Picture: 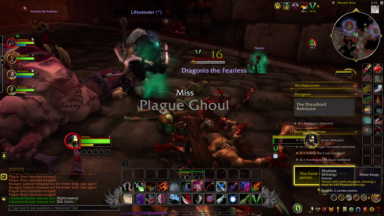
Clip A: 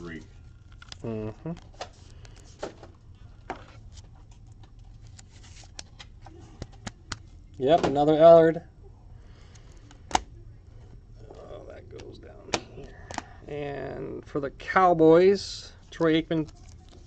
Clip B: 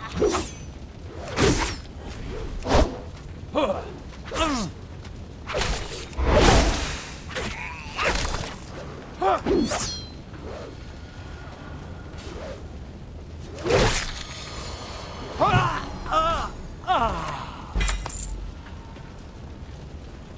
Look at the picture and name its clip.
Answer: B